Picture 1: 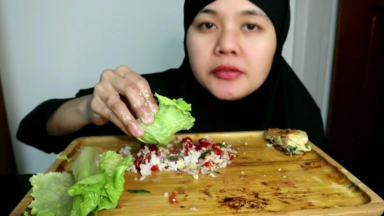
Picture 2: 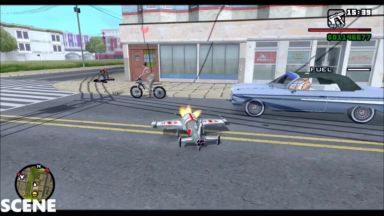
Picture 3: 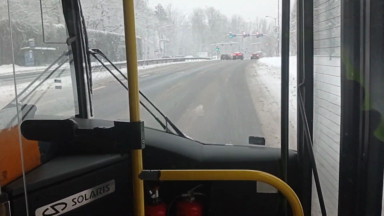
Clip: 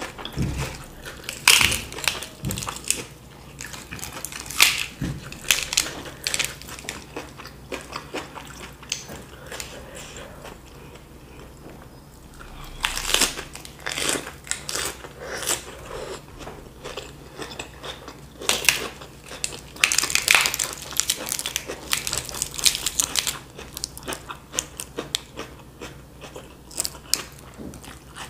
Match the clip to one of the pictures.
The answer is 1